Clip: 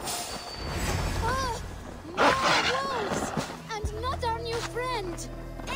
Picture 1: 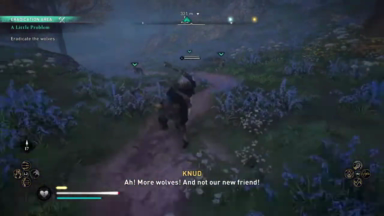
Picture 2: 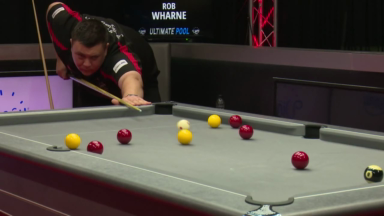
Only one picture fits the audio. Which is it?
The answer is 1